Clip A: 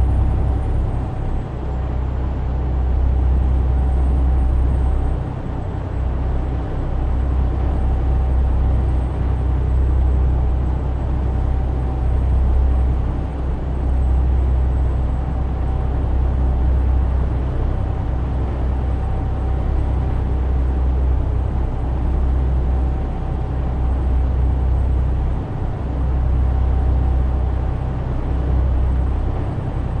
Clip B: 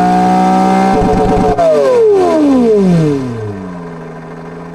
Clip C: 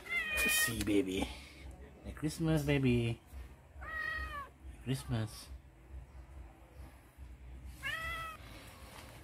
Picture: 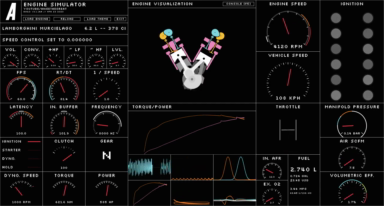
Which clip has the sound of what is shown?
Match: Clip B